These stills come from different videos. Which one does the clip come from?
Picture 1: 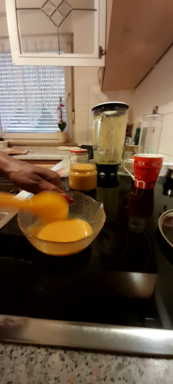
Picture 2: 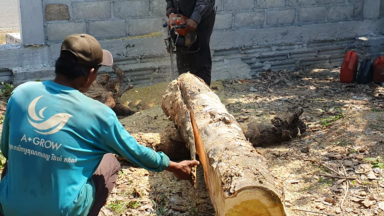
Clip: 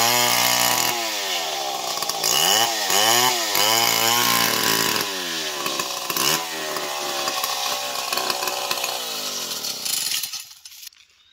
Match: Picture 2